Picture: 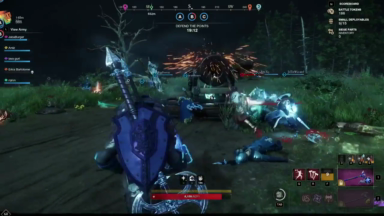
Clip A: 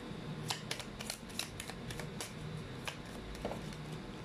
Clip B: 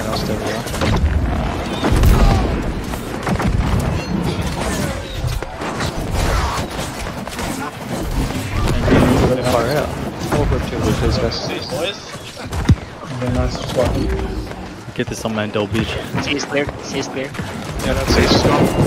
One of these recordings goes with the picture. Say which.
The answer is B